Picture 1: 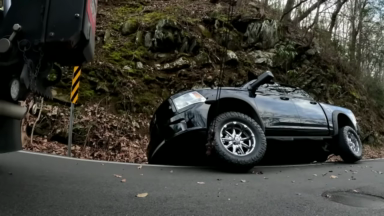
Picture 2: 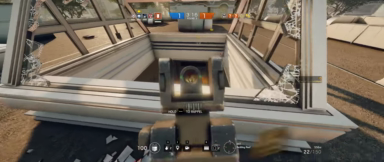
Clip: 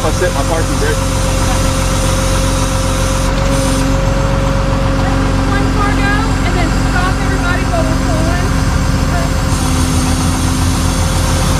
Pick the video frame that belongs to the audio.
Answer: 1